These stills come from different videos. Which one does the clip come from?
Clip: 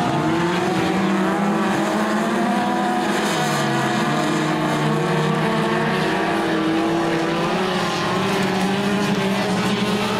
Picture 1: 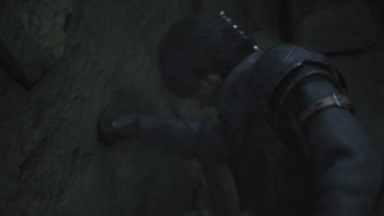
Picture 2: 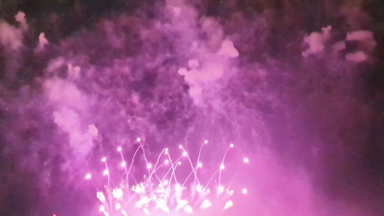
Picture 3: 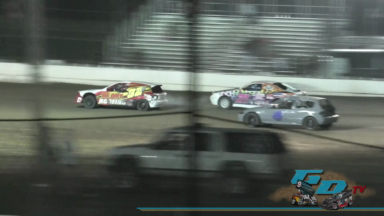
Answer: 3